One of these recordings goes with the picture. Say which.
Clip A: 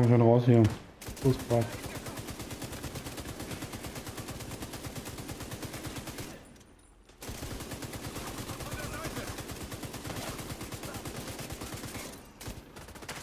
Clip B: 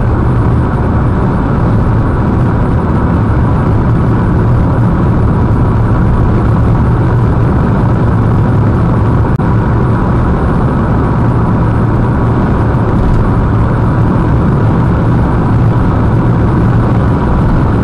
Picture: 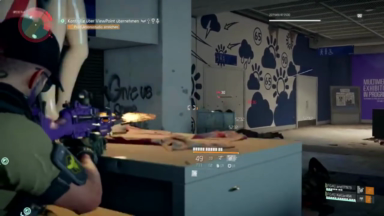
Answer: A